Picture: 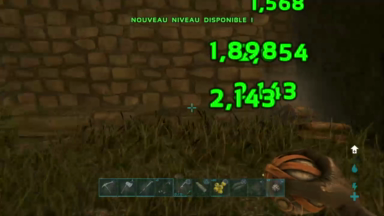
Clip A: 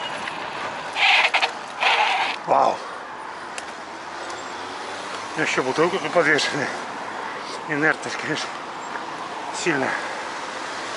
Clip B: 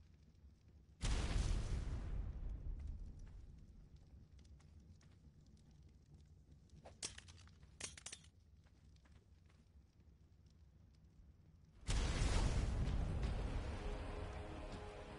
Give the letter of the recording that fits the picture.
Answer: B